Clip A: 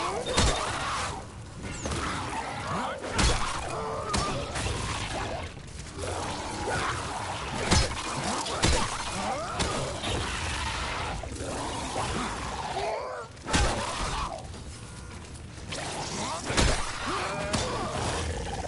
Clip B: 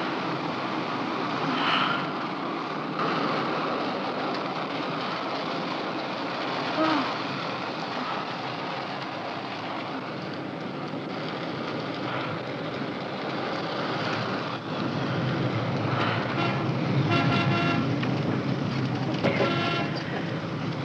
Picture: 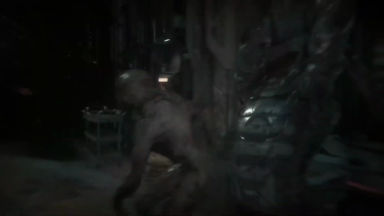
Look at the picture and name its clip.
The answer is A